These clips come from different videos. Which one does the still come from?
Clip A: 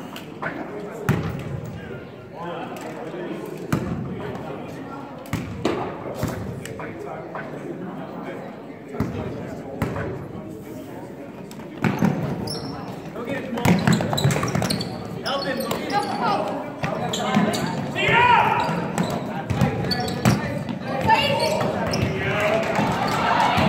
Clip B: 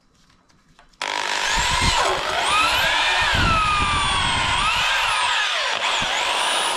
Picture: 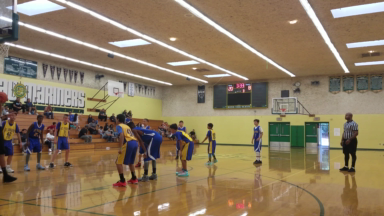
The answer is A